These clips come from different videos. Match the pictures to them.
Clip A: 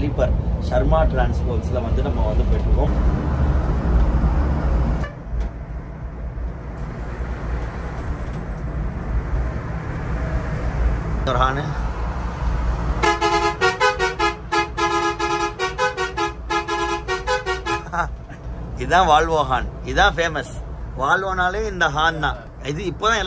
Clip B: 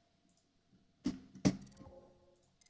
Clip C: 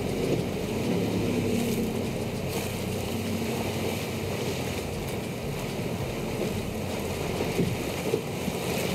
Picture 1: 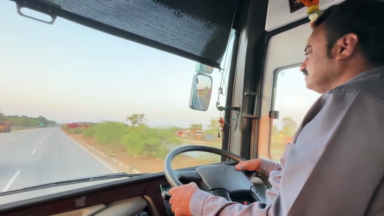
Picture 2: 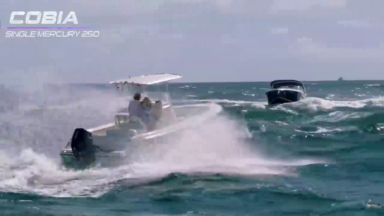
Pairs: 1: A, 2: C